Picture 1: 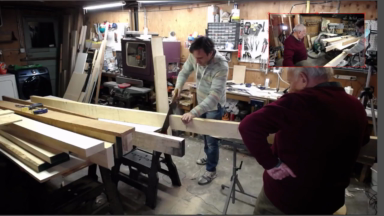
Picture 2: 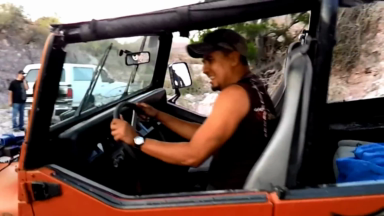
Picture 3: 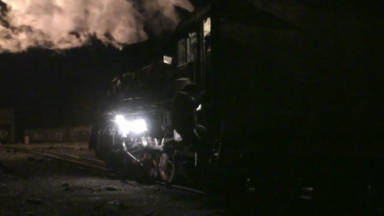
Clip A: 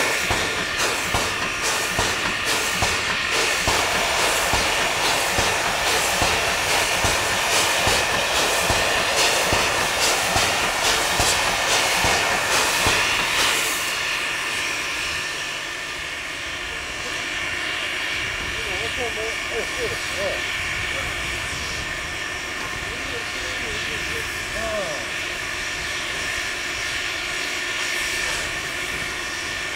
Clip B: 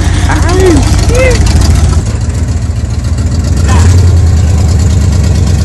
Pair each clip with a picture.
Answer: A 3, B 2